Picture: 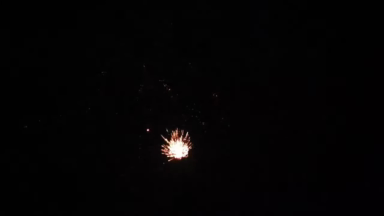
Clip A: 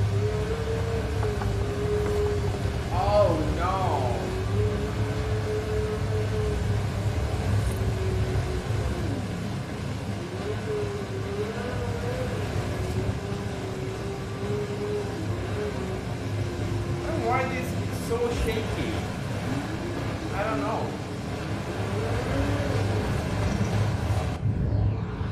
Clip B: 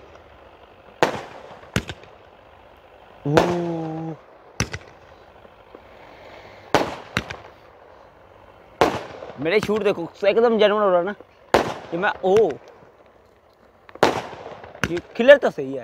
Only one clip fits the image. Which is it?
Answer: B